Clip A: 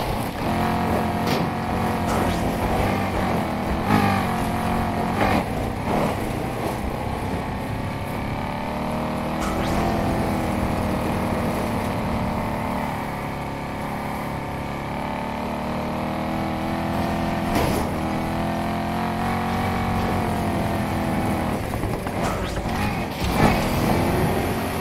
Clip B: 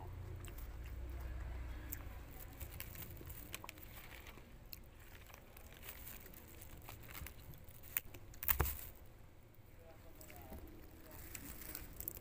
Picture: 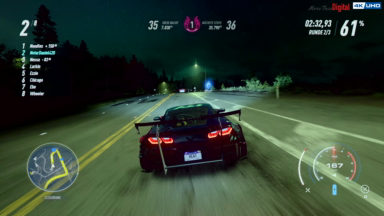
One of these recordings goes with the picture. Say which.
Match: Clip A